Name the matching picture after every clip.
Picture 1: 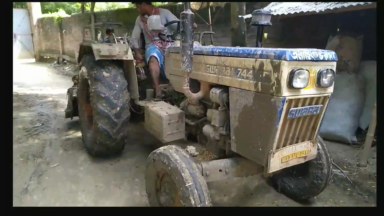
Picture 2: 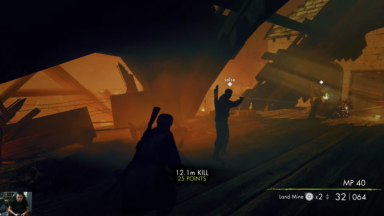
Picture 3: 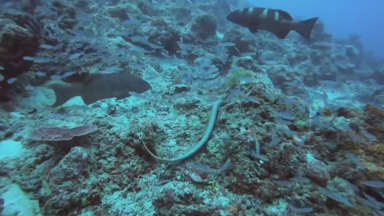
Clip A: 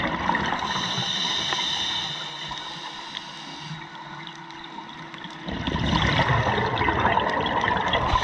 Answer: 3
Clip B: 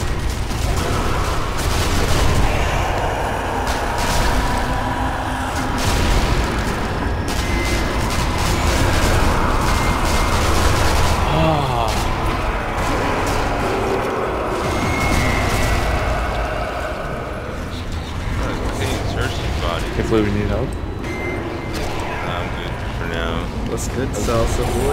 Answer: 2